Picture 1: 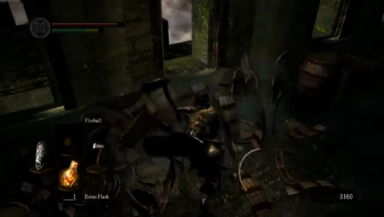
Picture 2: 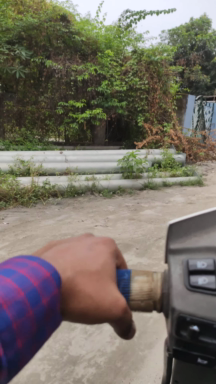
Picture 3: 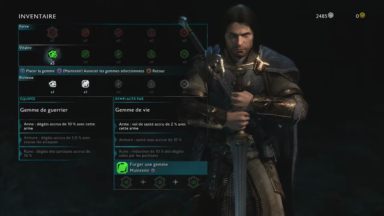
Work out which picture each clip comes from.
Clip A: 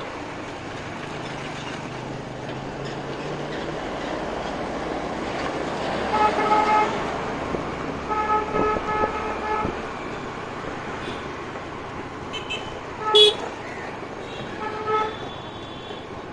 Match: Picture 2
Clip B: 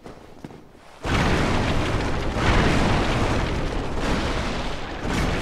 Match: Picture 1